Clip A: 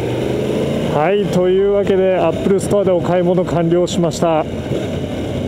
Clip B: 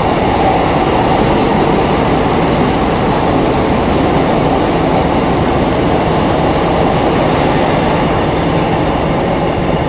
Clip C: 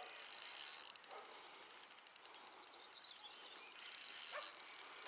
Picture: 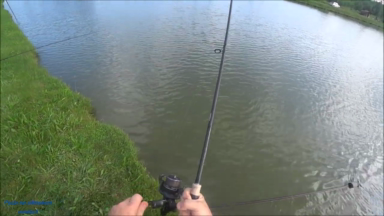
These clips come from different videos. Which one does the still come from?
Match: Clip C